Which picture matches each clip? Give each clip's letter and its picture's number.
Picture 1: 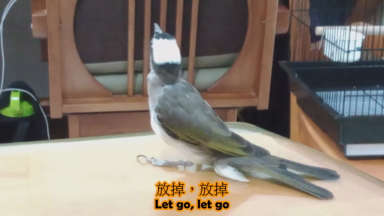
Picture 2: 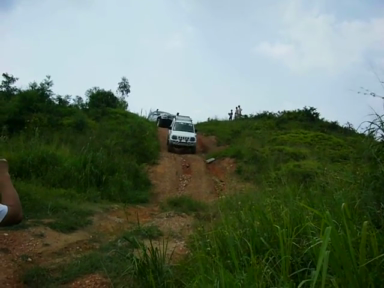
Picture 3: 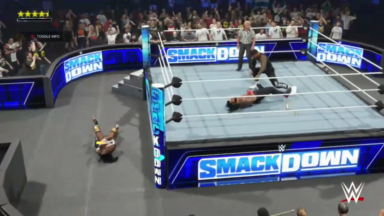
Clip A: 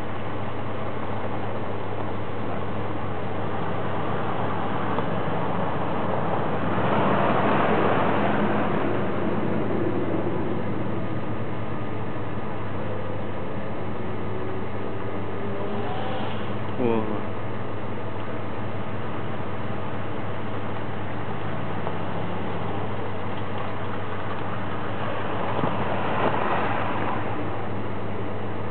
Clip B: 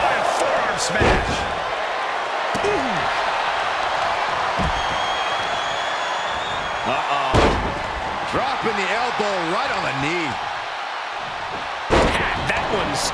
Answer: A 2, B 3